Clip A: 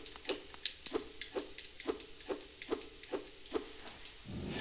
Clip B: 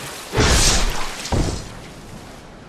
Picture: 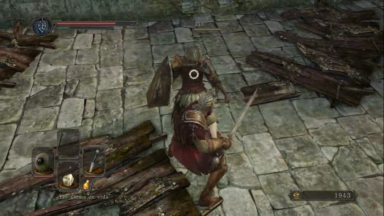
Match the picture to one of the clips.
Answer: B